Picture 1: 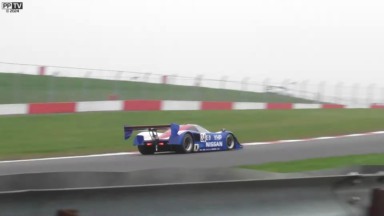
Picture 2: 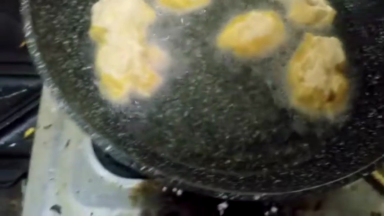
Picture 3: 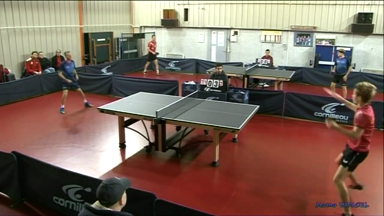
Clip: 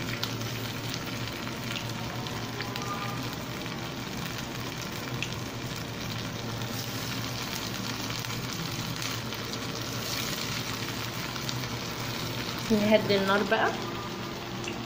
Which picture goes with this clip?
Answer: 2